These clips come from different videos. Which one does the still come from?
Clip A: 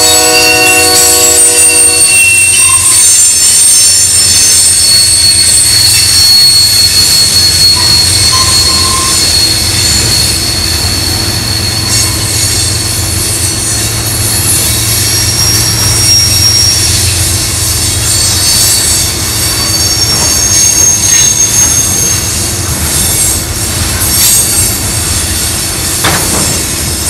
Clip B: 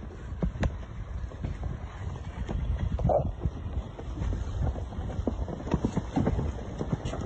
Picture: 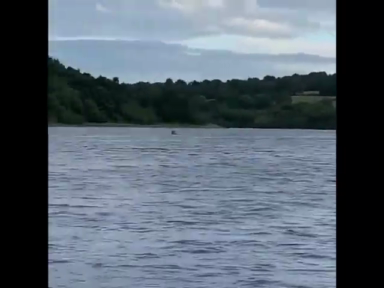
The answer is B